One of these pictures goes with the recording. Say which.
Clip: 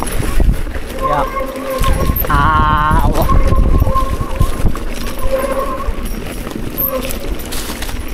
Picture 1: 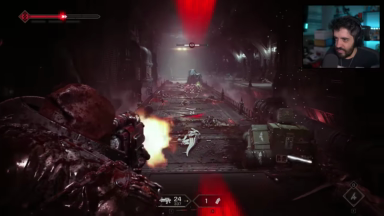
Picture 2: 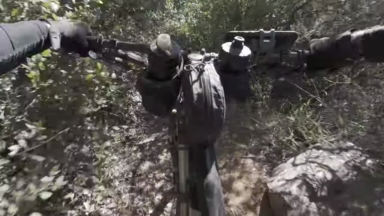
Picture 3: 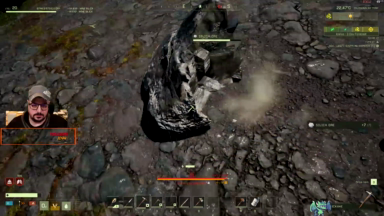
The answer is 2